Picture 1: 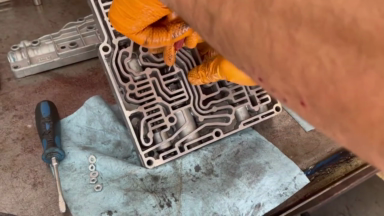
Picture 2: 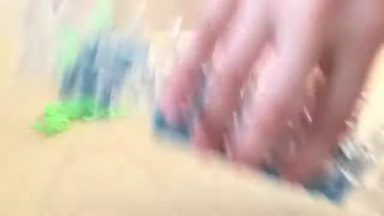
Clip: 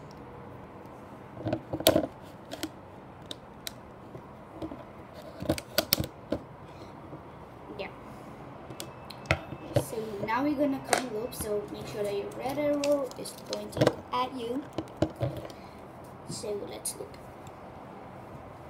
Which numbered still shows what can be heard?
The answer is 2